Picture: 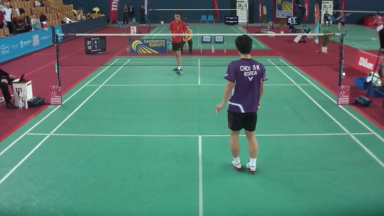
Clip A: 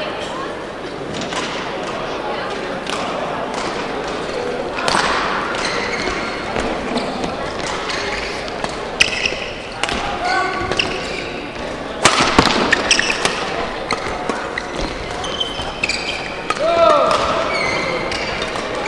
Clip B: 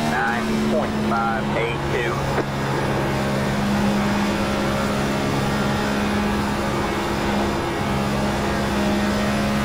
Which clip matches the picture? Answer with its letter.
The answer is A